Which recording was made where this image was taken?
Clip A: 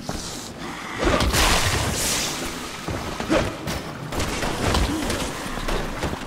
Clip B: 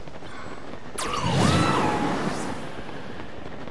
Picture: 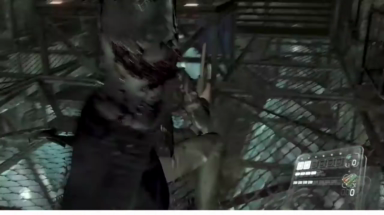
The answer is A